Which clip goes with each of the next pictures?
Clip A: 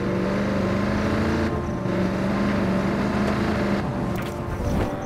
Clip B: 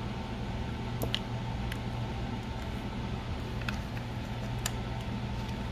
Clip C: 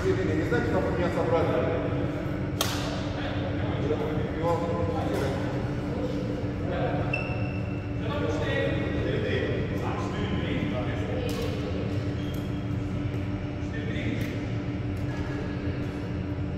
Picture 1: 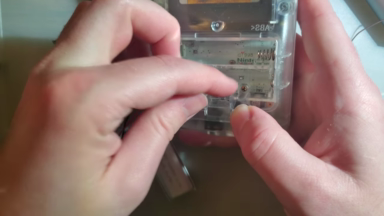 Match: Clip B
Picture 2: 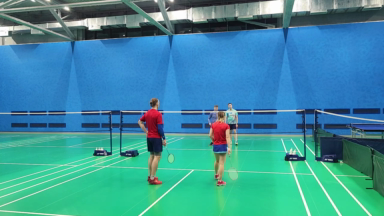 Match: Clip C